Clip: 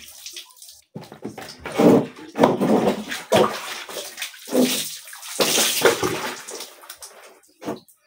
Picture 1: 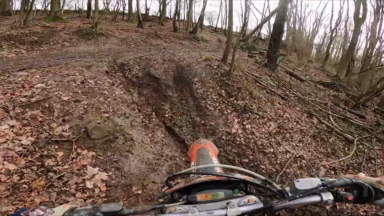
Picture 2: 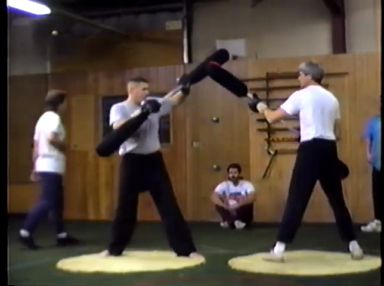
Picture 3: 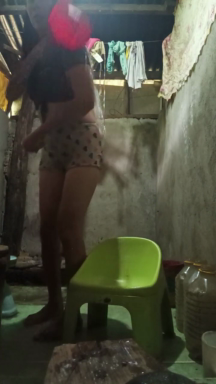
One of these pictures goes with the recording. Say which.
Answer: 3